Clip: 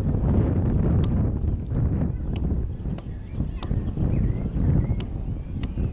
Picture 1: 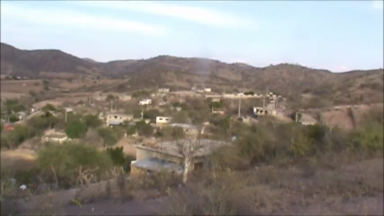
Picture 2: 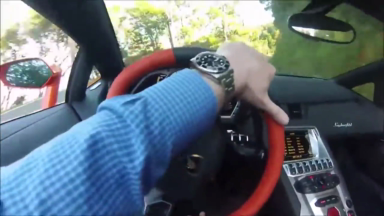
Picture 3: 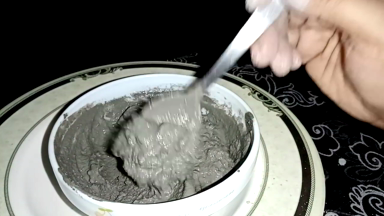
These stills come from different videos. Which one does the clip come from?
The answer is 1